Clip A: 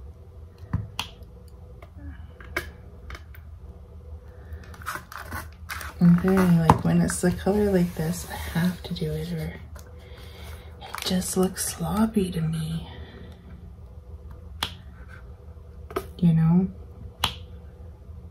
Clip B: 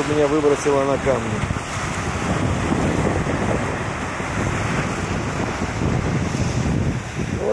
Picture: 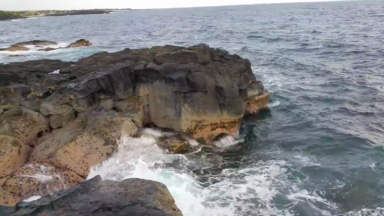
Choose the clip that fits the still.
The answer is B